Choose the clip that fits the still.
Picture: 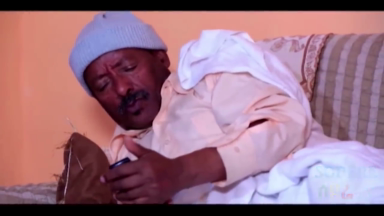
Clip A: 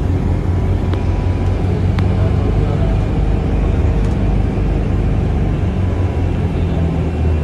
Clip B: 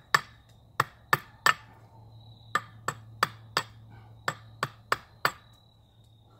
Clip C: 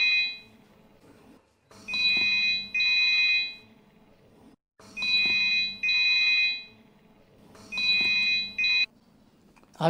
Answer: C